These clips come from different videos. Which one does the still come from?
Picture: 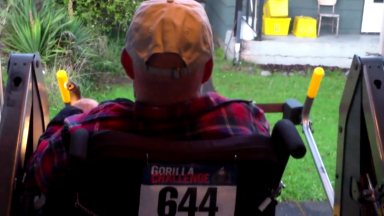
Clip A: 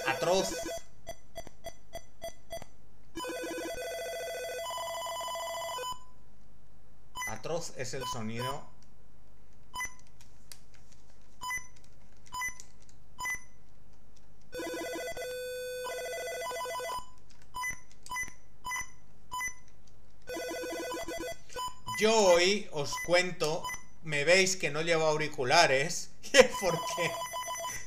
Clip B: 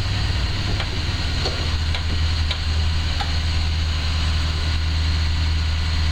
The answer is B